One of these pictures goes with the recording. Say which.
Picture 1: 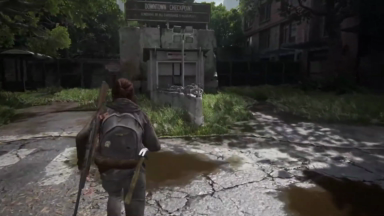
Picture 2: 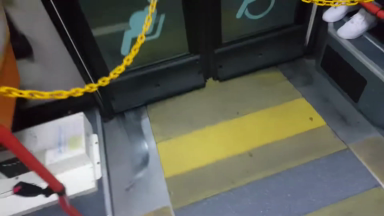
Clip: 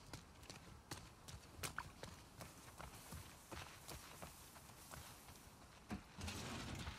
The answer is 1